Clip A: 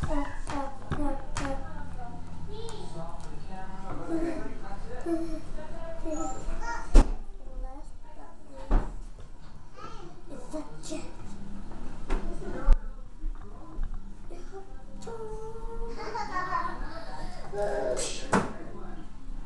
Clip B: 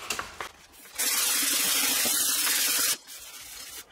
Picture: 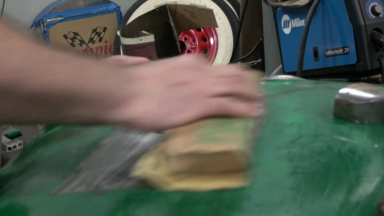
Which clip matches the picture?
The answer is B